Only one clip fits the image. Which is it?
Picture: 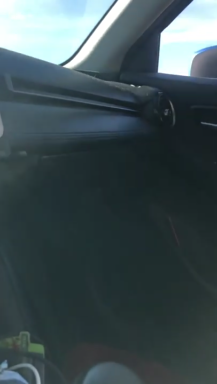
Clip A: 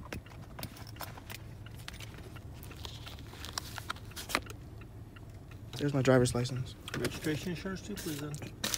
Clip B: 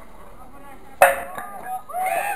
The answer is A